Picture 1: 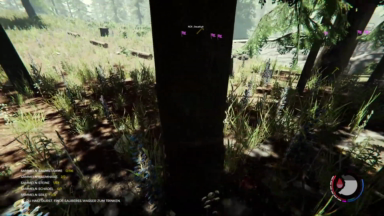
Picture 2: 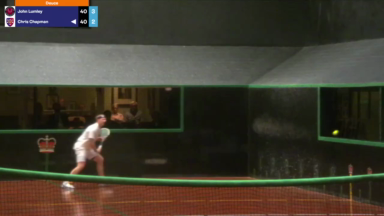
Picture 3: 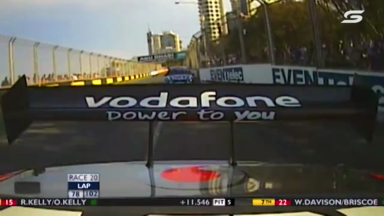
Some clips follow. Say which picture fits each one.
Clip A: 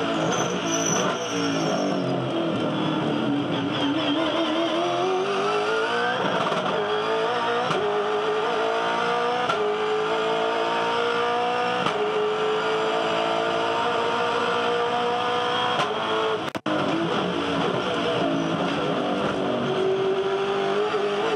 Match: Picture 3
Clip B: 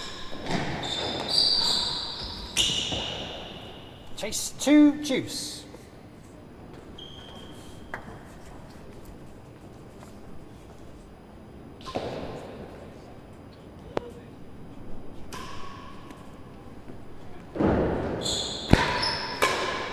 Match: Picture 2